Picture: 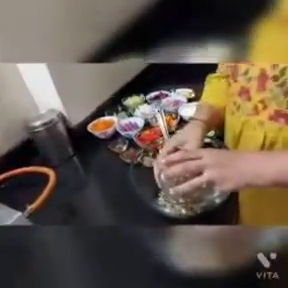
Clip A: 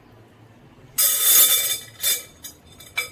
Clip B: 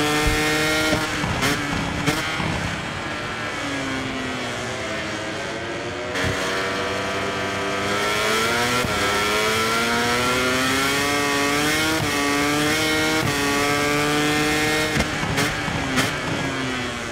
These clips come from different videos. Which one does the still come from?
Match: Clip A